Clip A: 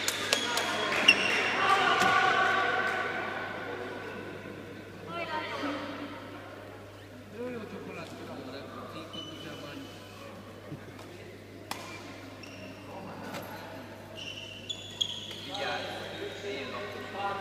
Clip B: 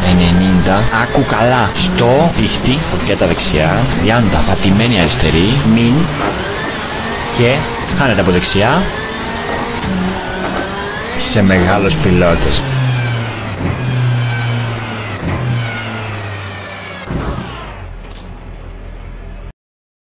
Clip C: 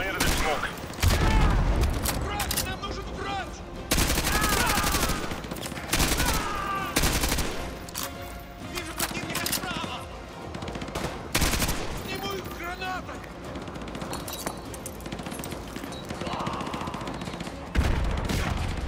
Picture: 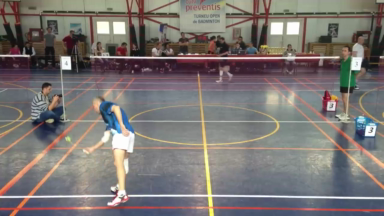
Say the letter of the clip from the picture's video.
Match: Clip A